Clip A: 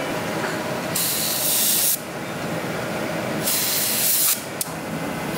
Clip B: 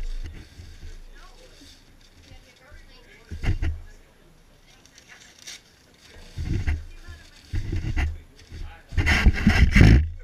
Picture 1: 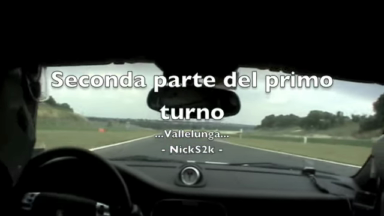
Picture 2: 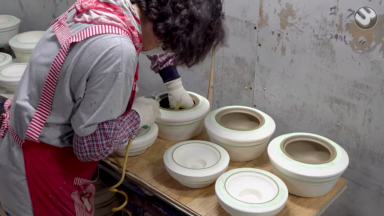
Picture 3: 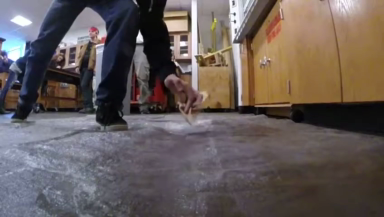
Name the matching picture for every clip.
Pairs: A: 2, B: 3